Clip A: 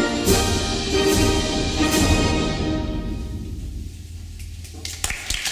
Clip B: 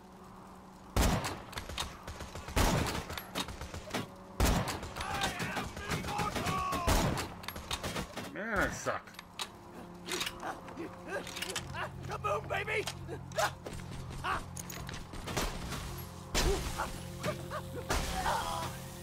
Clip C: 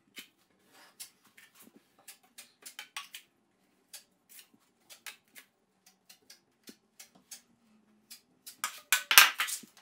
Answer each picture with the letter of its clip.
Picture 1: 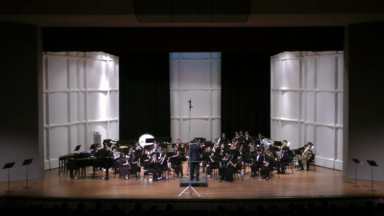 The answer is A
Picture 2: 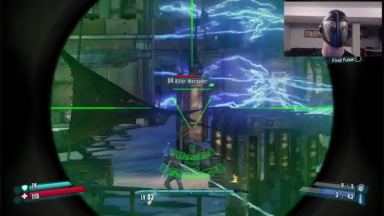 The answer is B